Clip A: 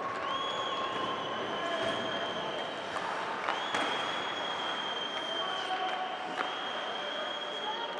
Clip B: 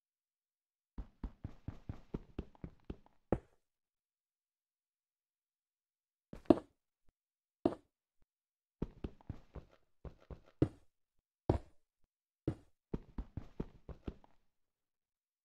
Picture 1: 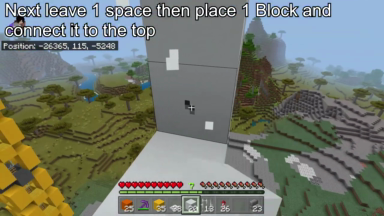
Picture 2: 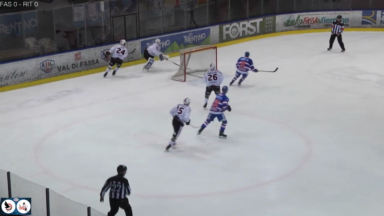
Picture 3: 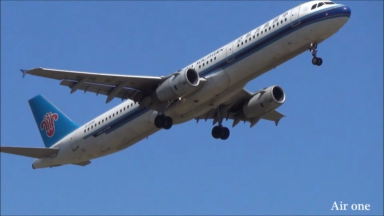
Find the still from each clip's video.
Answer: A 2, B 1